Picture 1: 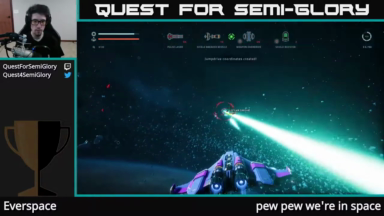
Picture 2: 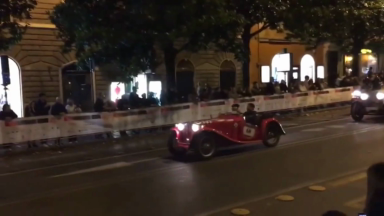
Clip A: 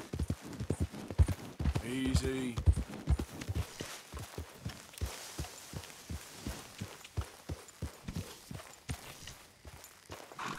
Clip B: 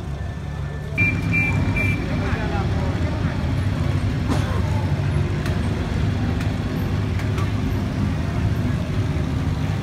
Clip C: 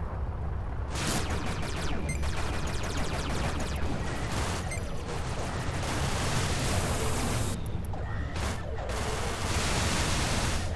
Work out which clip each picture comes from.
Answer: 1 C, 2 B